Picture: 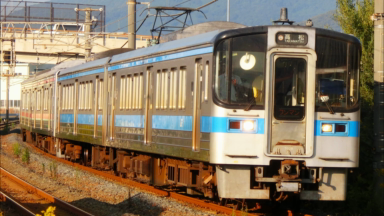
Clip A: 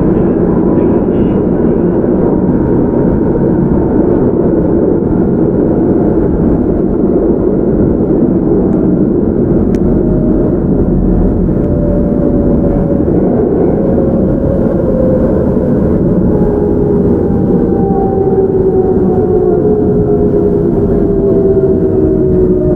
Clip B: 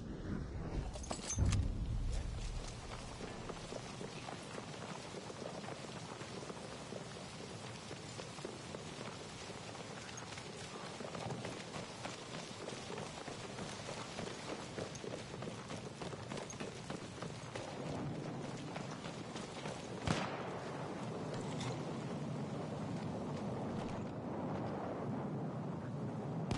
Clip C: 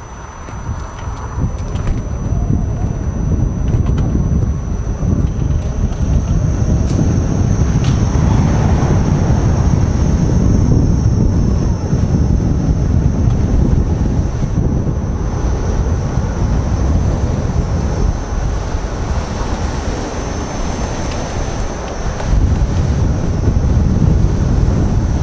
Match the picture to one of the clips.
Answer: A